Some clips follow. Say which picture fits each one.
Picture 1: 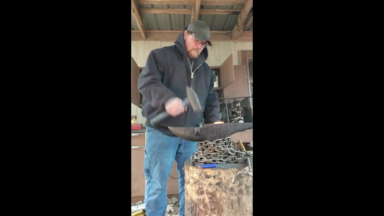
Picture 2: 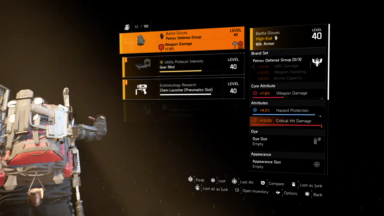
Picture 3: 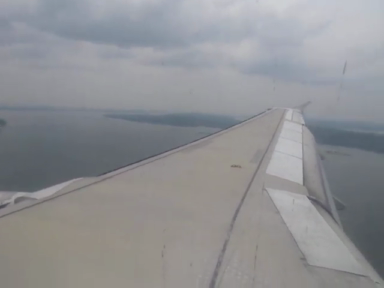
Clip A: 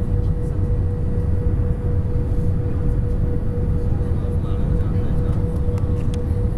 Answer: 3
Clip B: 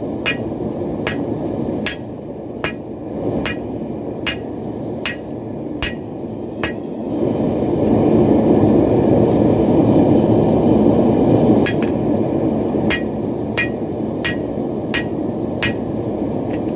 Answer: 1